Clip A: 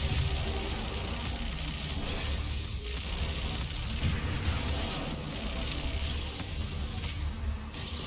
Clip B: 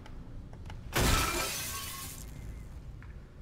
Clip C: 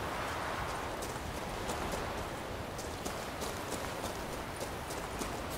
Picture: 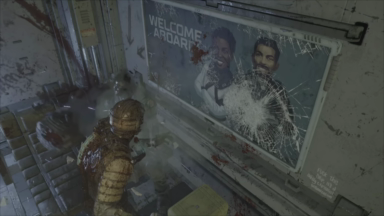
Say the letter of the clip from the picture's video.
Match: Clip B